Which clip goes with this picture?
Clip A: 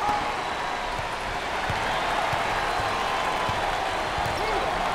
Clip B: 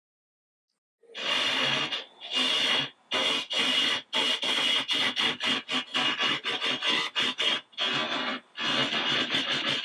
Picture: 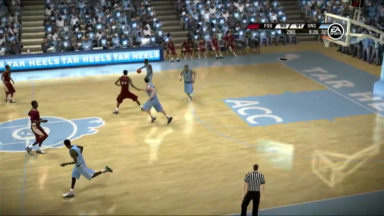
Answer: A